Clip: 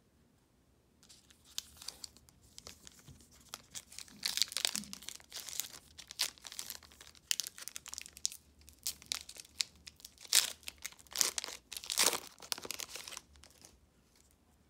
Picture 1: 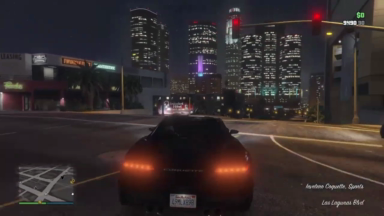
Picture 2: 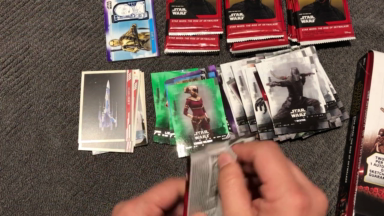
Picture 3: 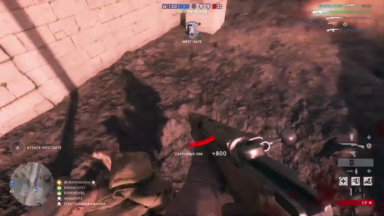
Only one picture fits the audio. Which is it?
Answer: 2